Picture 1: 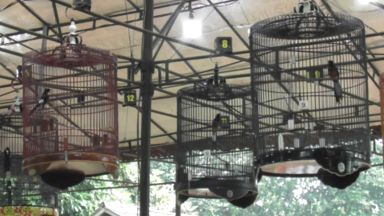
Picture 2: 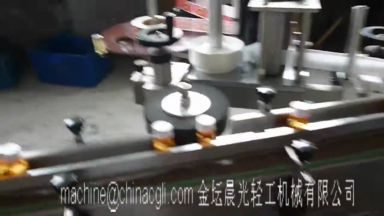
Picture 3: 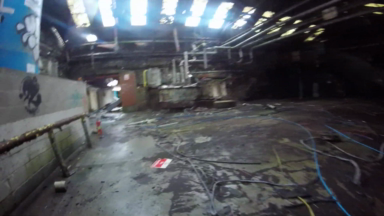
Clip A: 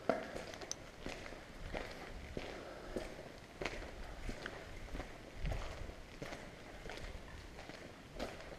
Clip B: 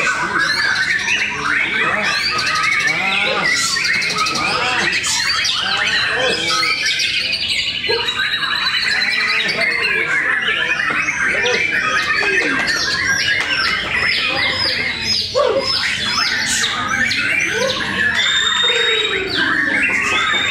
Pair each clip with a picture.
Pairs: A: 3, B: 1